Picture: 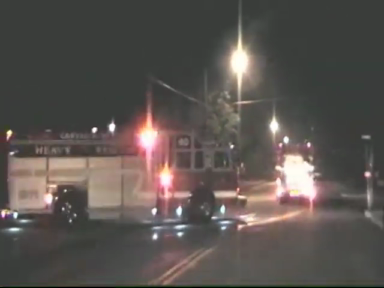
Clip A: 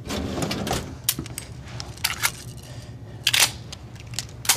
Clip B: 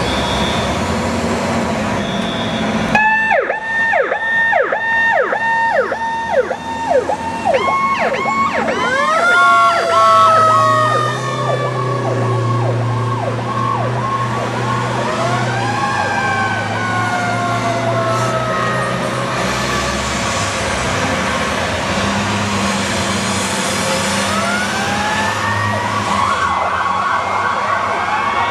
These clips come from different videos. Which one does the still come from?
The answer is B